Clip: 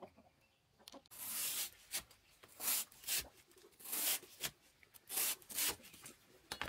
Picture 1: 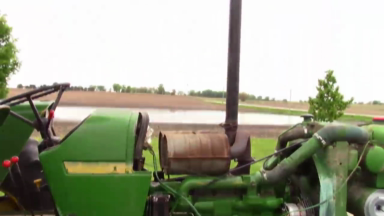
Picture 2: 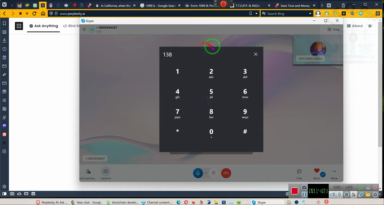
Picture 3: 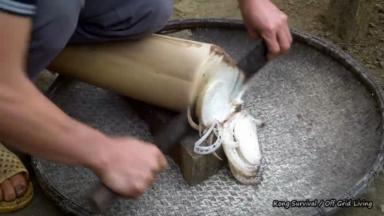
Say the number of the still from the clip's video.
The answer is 3